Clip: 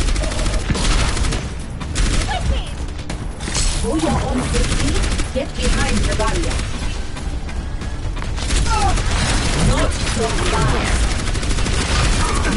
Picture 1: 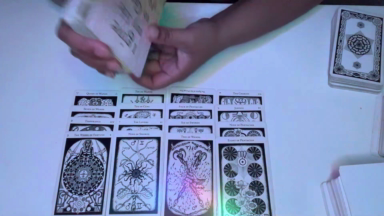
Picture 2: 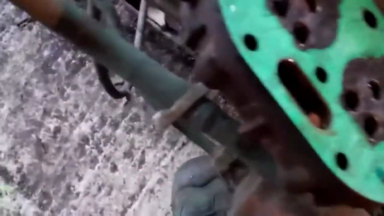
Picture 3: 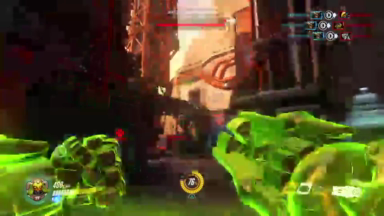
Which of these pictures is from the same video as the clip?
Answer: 3